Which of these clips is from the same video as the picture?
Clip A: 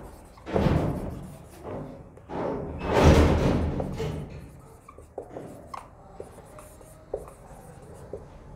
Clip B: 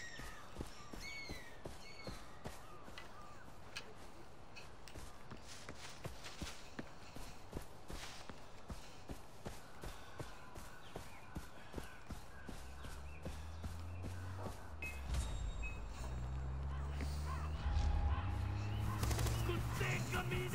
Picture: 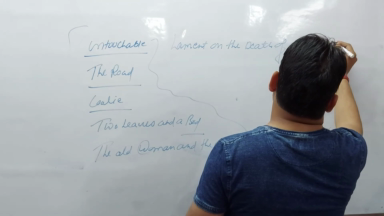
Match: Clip A